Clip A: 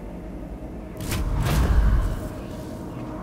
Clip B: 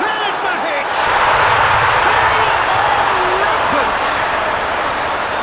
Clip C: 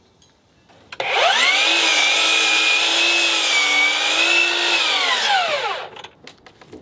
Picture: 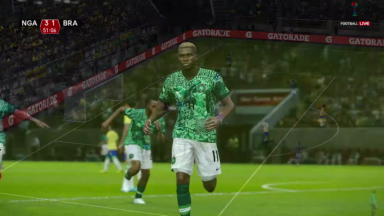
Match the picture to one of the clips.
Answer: B